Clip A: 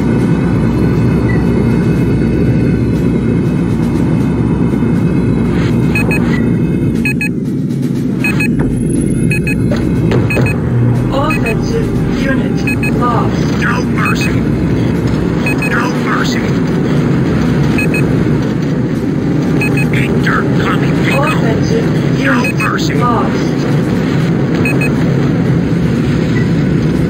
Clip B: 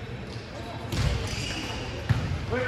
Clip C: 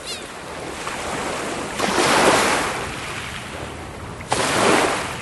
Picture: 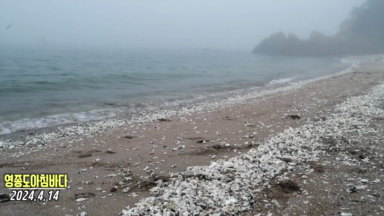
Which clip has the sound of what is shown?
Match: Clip C